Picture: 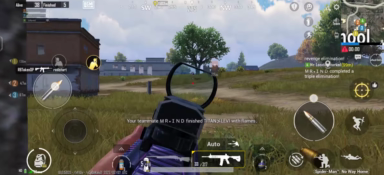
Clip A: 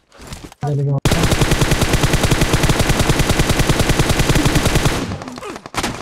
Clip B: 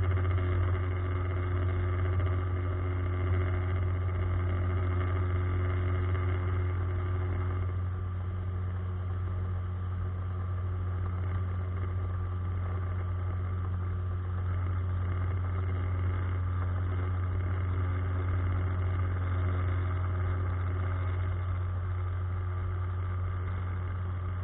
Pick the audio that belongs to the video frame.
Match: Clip A